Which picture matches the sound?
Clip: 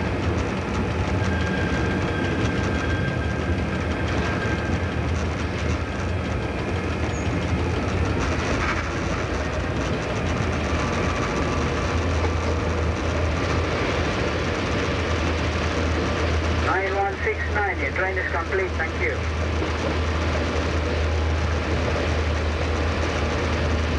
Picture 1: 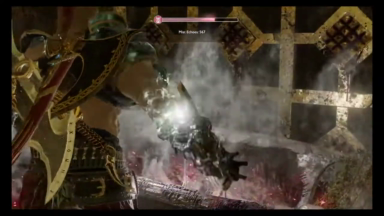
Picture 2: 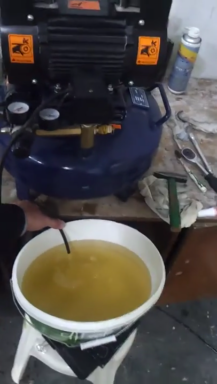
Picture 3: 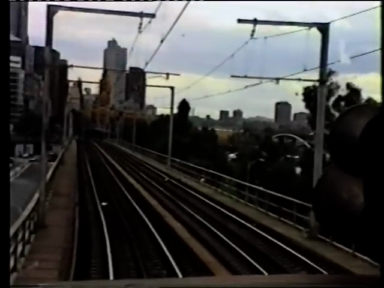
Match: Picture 3